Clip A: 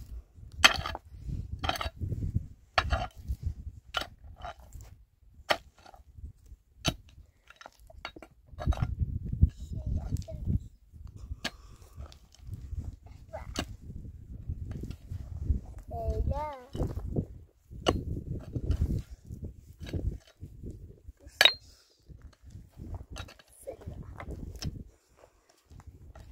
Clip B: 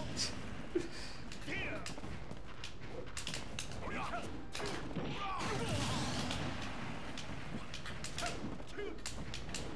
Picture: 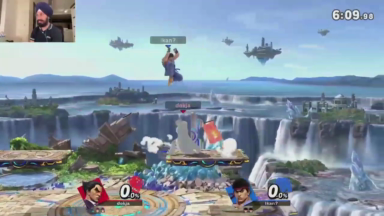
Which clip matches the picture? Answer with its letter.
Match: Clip B